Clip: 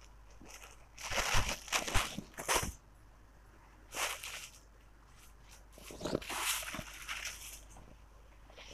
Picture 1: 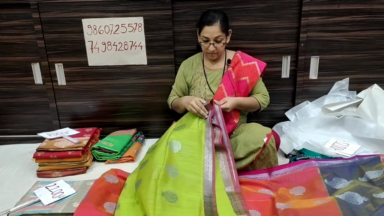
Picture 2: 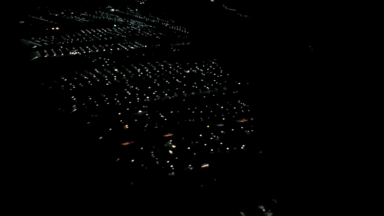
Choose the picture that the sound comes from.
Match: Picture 1